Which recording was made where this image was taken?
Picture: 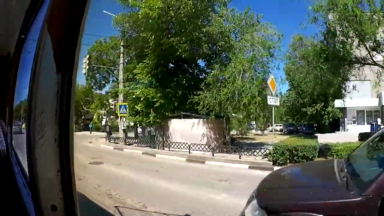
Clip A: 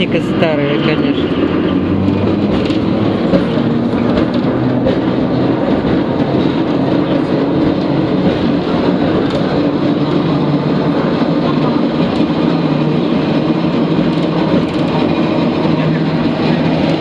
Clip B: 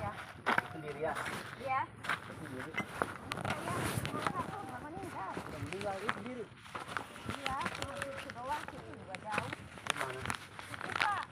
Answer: A